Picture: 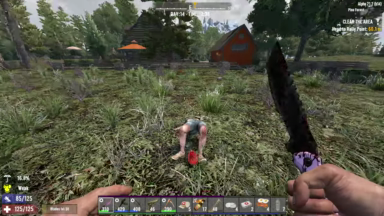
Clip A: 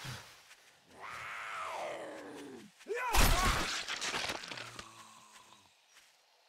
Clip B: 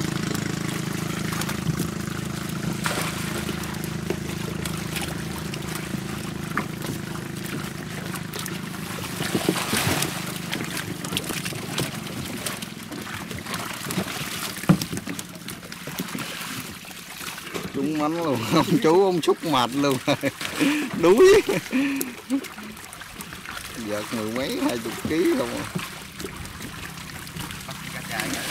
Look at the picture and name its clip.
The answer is A